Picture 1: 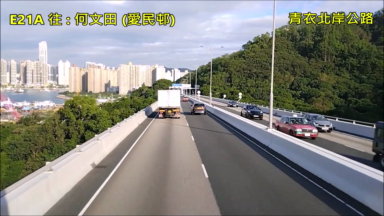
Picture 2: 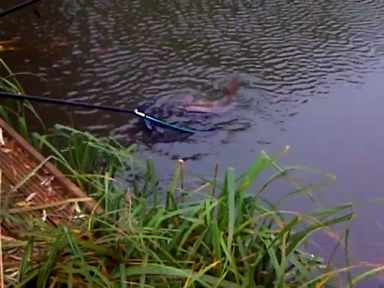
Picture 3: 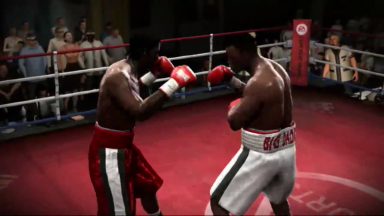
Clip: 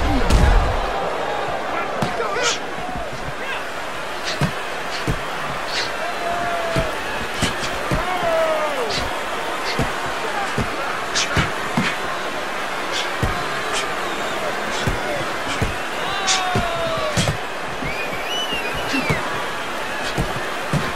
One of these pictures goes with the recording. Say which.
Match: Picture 3